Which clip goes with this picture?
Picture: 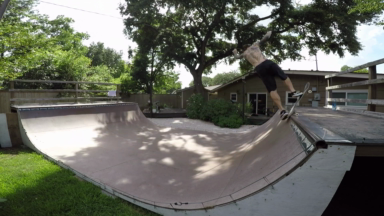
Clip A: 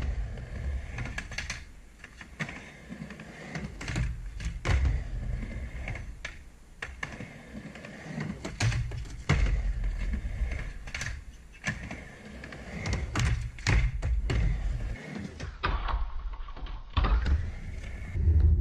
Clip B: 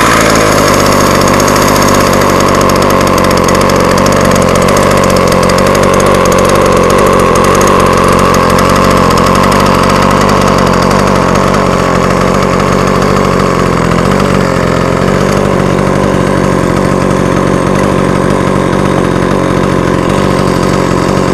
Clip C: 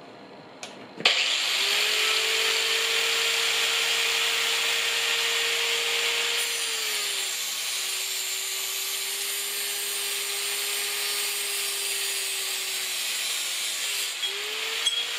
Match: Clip A